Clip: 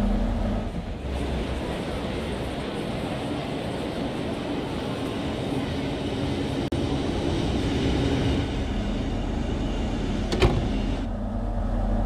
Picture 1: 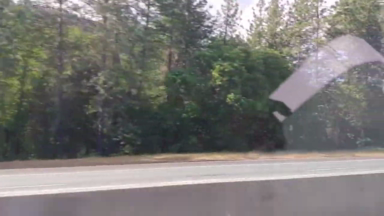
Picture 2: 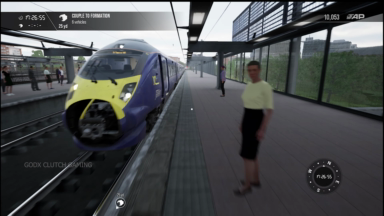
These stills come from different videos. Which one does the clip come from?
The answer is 2